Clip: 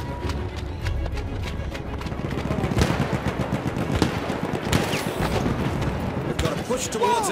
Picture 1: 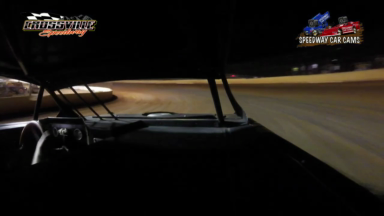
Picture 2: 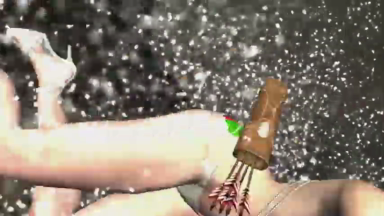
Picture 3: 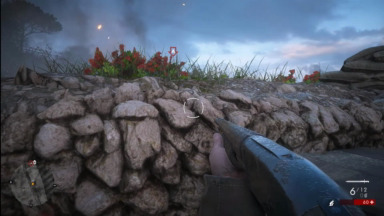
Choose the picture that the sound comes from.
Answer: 3